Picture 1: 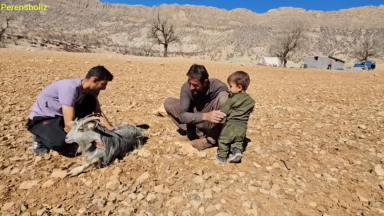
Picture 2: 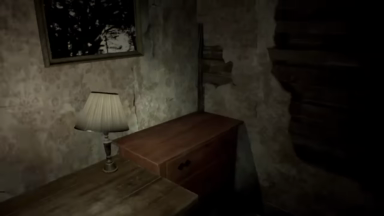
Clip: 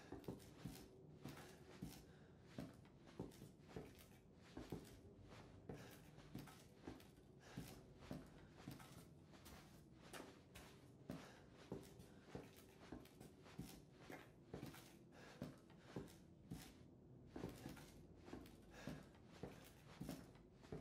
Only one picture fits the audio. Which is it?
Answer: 2